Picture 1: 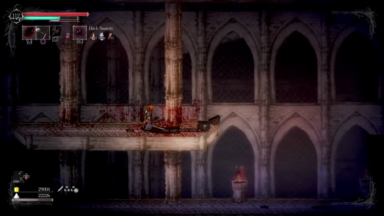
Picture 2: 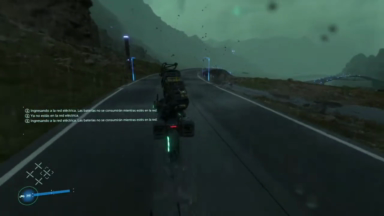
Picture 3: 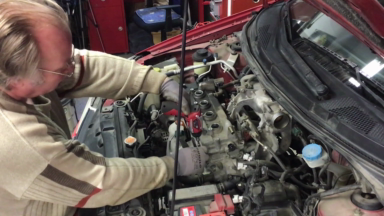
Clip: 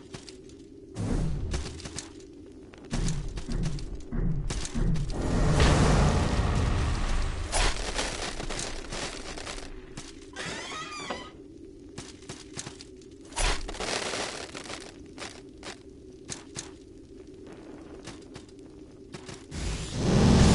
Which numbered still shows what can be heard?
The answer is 1